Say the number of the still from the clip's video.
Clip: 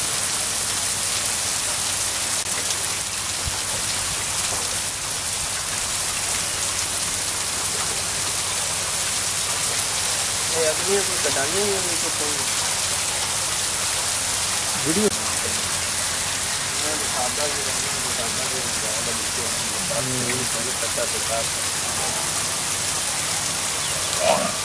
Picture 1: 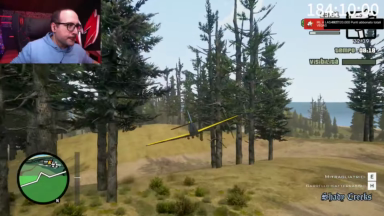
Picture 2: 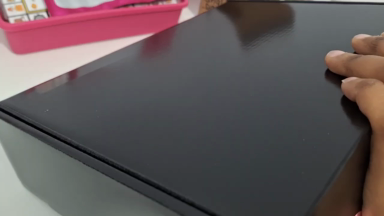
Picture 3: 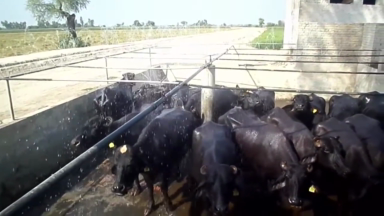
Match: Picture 3